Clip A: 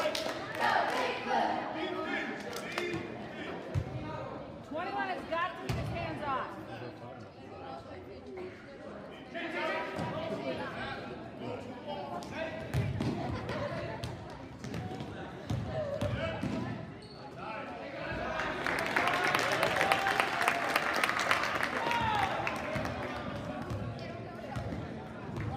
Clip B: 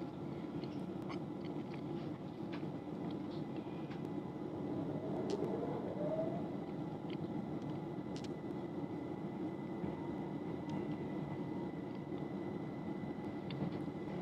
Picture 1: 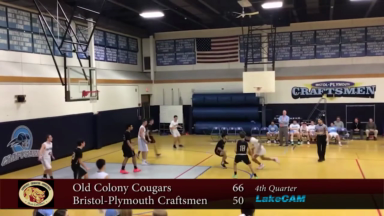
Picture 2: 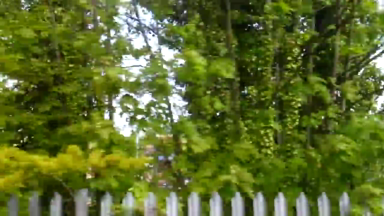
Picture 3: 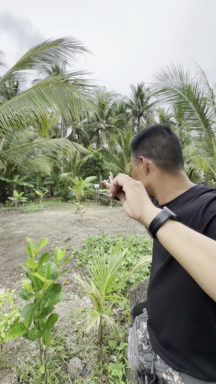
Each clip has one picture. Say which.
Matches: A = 1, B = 2